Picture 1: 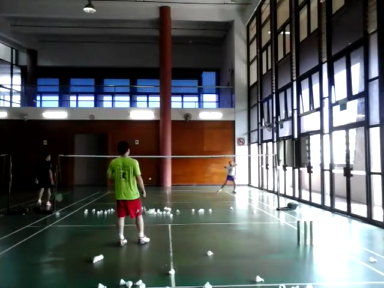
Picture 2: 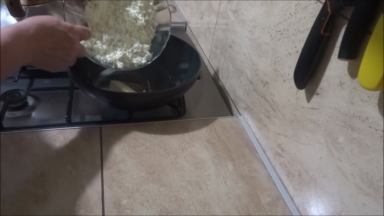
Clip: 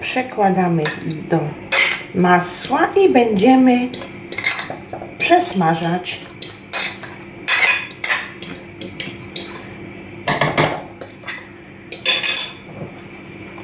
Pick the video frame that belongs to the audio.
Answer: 2